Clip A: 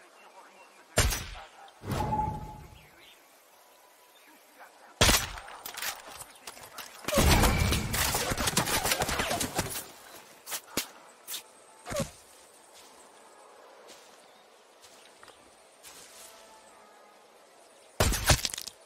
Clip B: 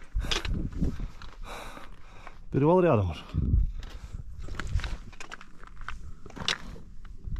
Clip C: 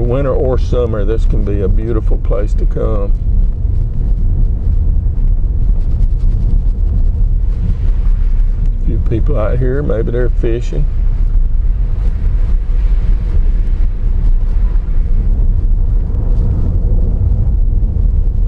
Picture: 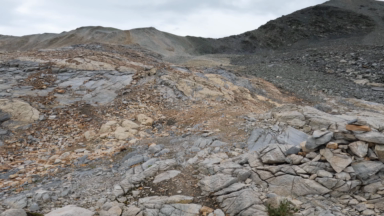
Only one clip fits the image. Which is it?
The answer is B